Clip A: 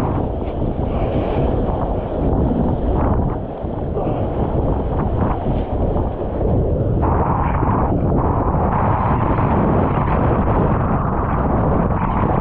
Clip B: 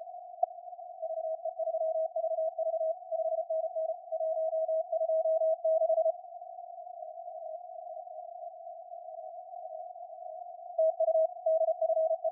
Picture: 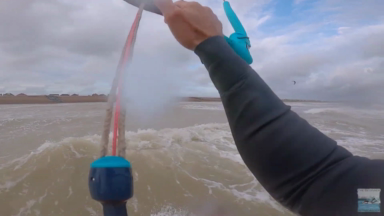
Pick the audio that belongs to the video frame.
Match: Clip A